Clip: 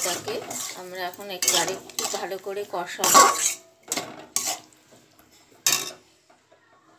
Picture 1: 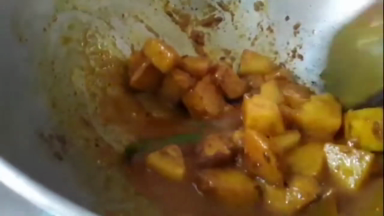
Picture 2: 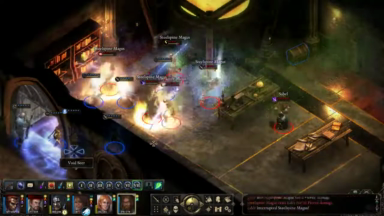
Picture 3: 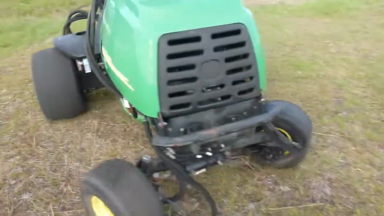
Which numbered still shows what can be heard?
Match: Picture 1